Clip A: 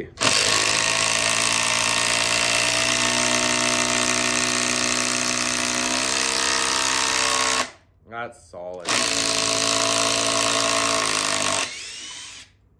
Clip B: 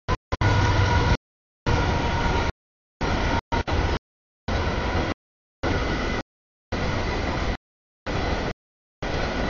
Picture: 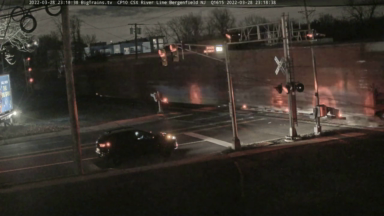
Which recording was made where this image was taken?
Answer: B